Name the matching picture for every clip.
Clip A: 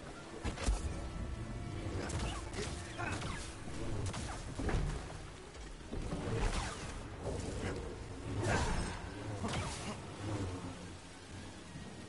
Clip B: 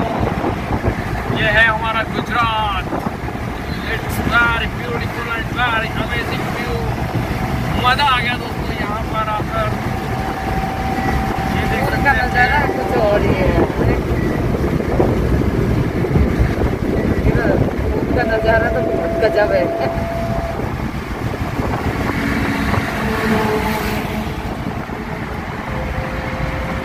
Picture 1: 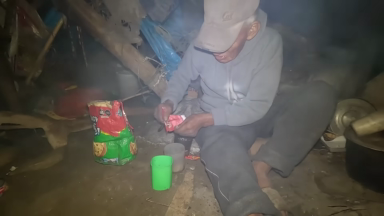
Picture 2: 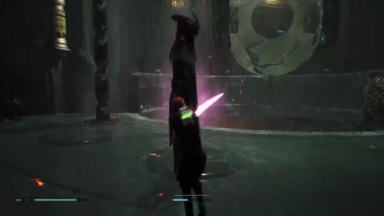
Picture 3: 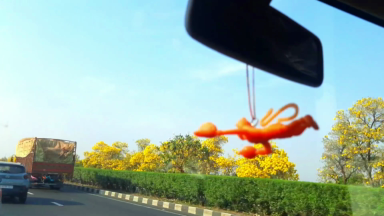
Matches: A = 2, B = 3